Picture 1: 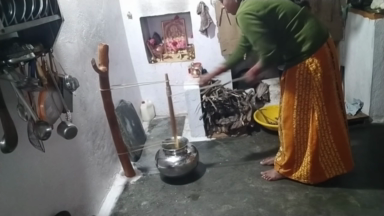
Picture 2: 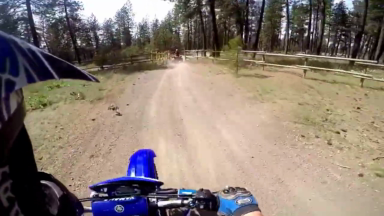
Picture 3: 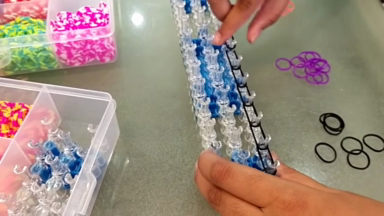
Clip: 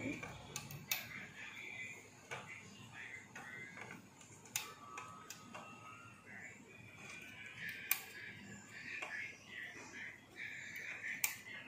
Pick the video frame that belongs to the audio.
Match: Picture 3